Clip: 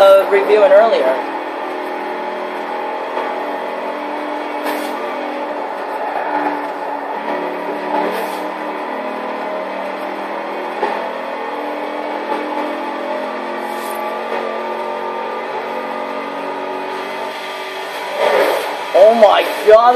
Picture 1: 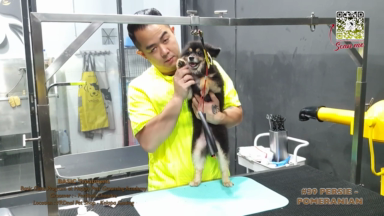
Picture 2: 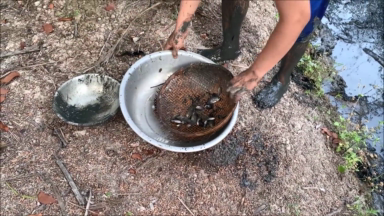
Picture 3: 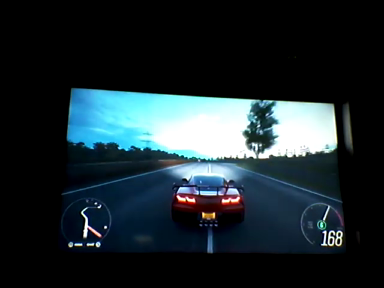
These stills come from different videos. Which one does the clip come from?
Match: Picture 3